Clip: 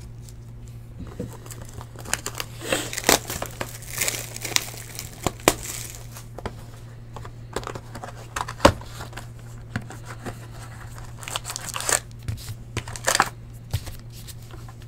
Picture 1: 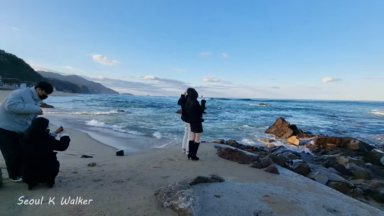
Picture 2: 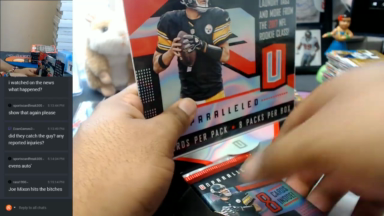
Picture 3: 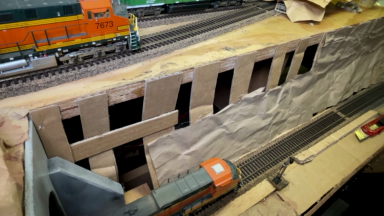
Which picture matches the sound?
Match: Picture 2